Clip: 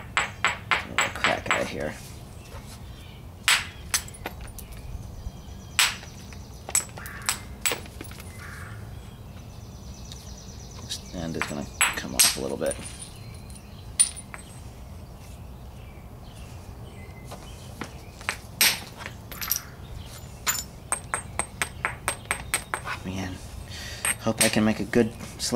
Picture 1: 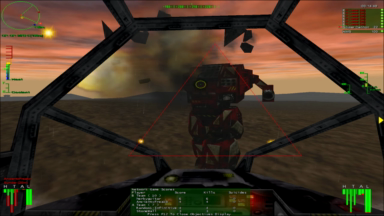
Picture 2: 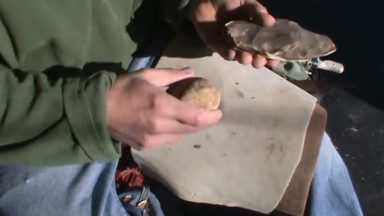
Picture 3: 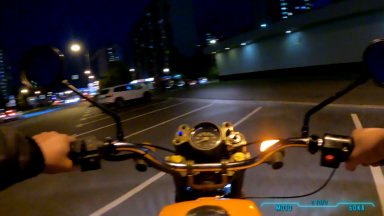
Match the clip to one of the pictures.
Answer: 2